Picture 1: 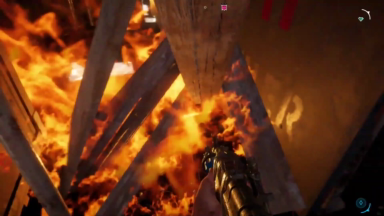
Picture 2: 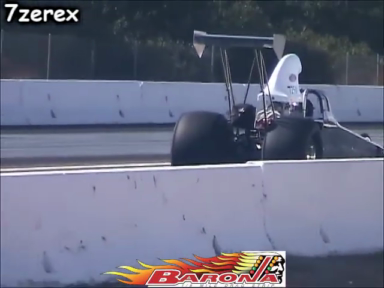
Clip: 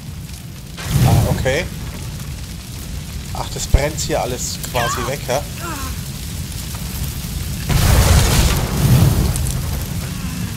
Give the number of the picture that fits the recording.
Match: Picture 1